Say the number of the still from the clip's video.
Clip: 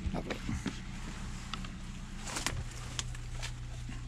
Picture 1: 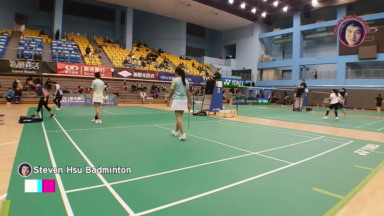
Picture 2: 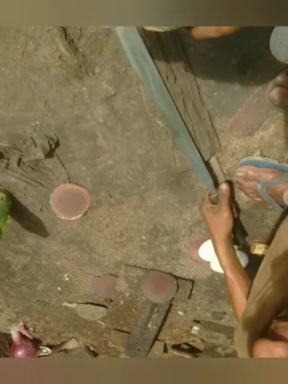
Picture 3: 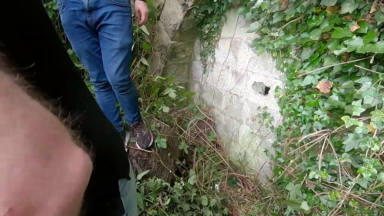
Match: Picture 3